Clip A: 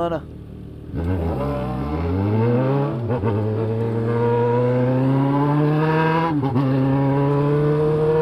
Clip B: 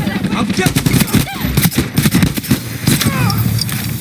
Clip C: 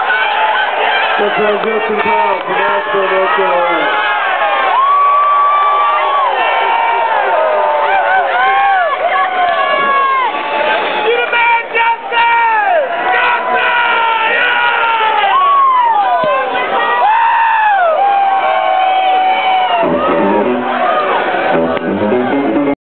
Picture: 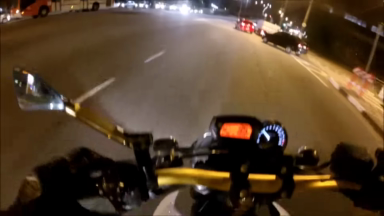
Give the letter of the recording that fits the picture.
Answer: A